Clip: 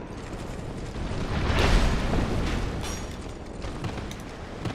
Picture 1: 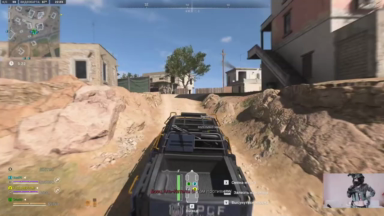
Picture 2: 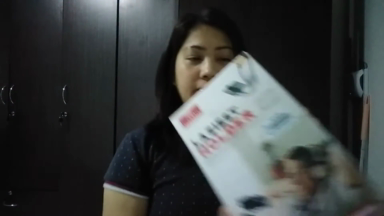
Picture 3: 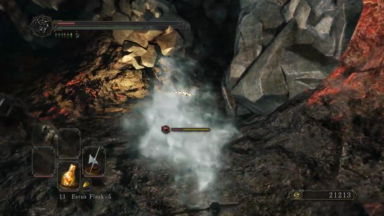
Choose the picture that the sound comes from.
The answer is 3